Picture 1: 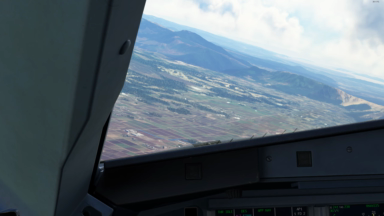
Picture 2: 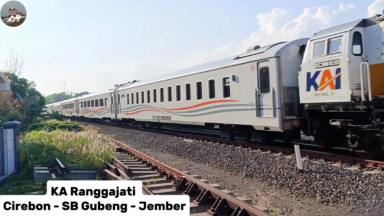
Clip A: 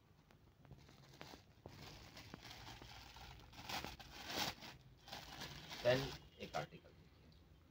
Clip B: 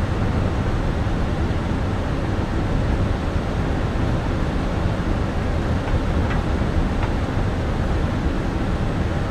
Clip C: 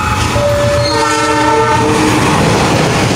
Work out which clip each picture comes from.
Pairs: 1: B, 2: C